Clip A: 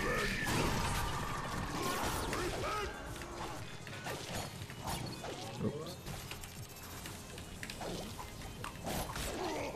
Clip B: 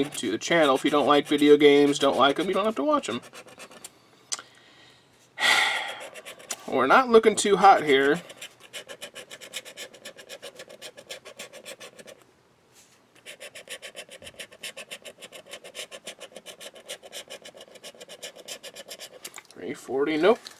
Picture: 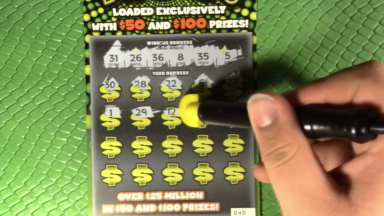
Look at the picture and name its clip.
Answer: B